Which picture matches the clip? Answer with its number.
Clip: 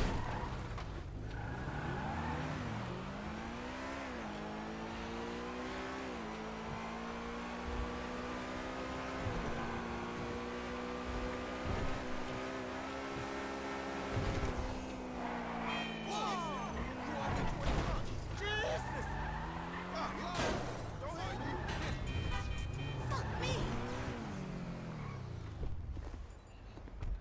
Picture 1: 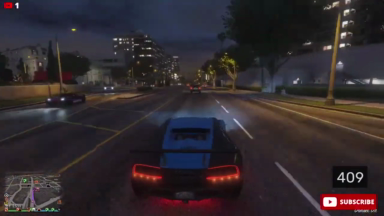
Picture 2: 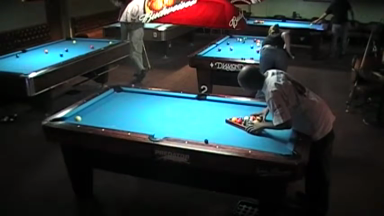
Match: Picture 1